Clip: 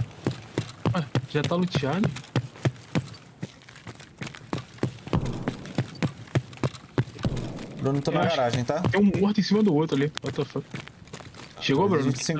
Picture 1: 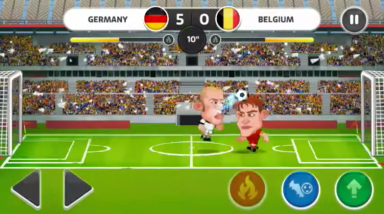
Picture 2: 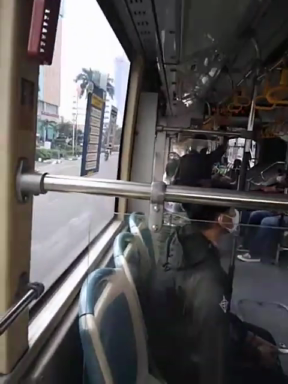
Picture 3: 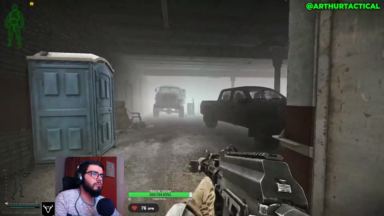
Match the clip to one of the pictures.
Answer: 3